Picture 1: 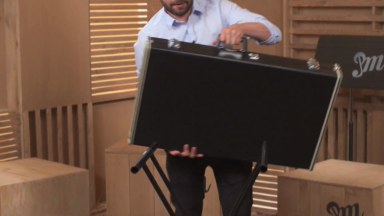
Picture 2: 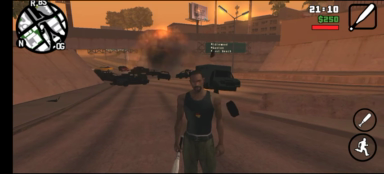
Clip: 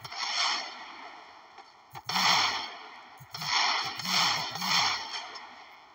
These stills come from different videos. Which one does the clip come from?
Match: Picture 2